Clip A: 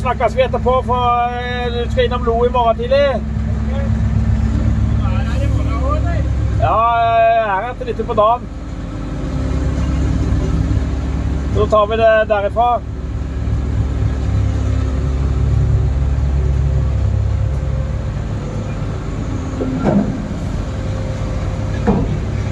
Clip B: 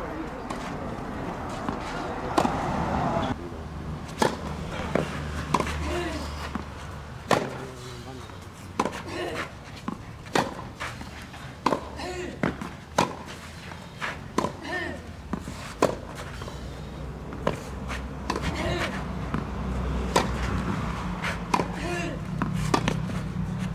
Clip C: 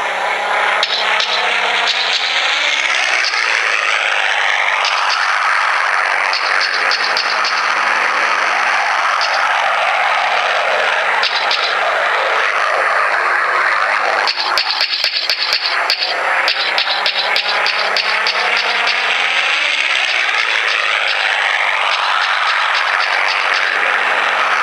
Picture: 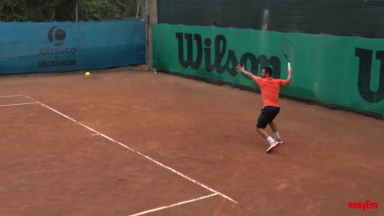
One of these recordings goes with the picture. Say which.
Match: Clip B